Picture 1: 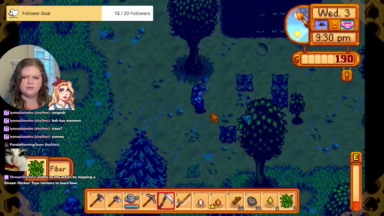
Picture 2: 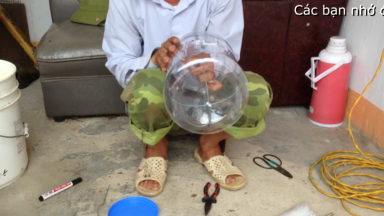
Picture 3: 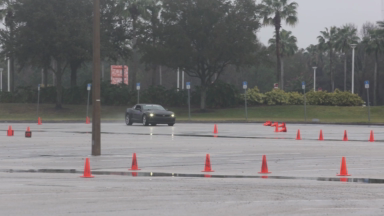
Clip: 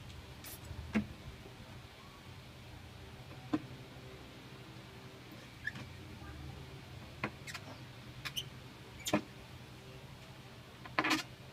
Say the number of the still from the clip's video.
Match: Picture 2